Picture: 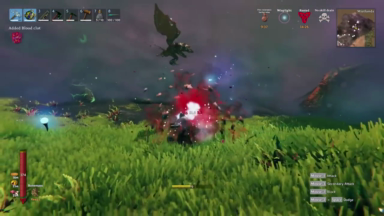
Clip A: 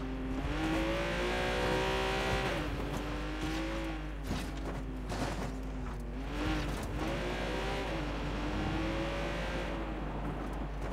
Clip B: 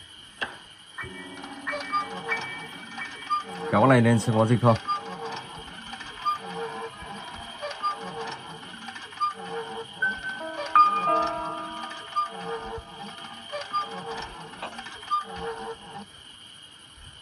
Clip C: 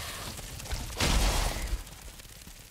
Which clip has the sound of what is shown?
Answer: C